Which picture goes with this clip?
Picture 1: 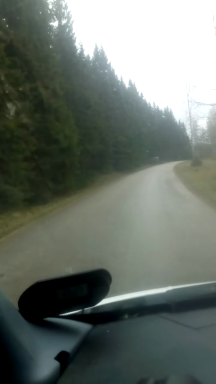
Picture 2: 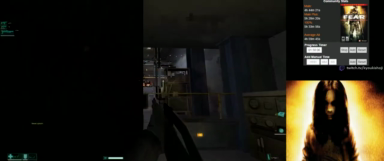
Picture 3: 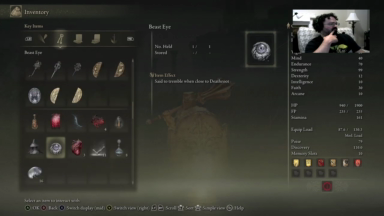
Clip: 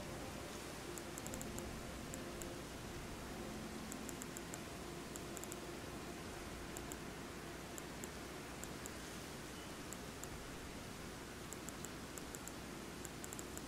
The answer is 3